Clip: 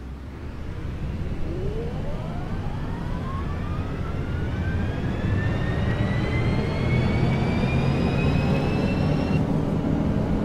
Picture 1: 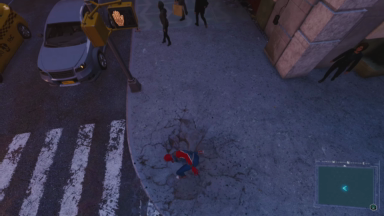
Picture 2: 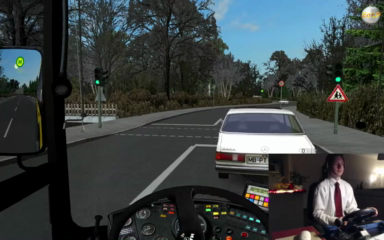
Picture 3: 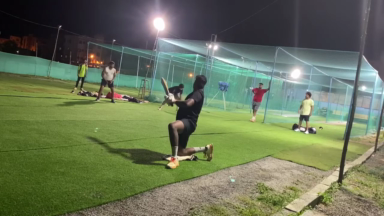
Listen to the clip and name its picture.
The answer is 2